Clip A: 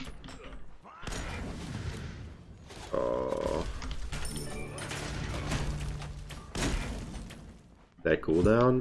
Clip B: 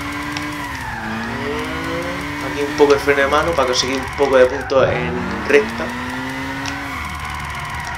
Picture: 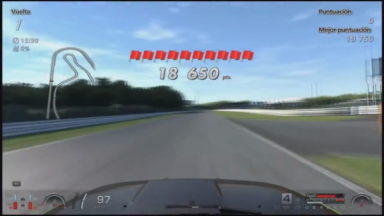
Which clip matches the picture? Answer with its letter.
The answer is B